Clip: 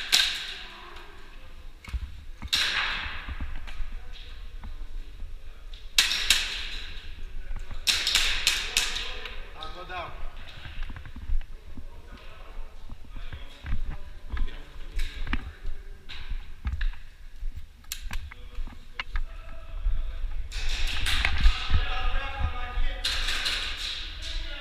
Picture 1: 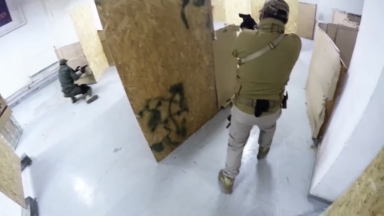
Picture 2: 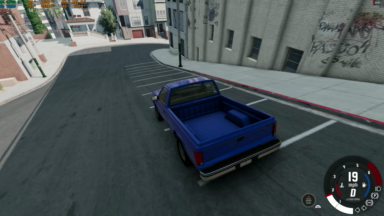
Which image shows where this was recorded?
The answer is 1